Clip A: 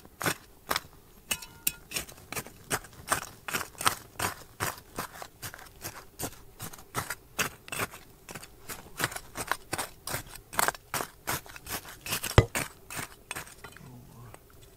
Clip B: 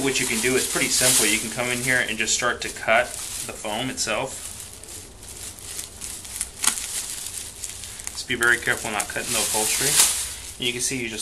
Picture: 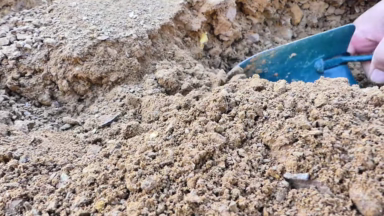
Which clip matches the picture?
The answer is A